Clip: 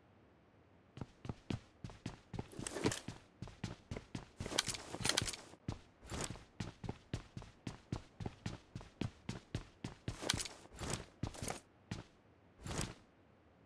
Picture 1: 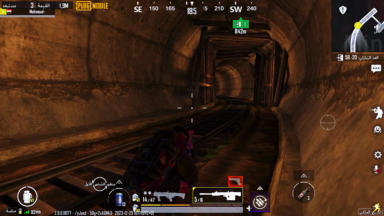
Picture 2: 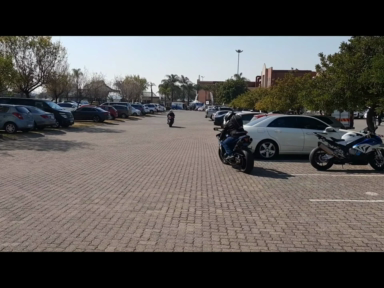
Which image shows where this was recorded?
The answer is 1